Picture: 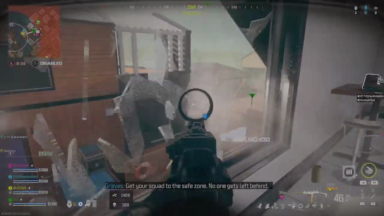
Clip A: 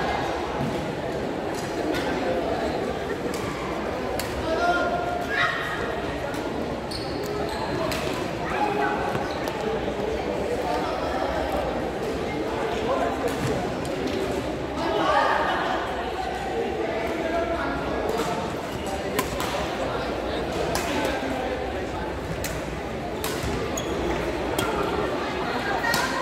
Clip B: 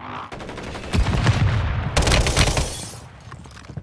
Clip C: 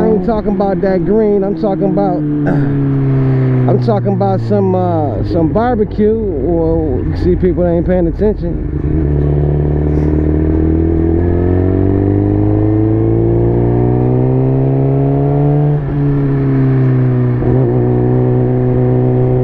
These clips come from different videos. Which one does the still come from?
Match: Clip B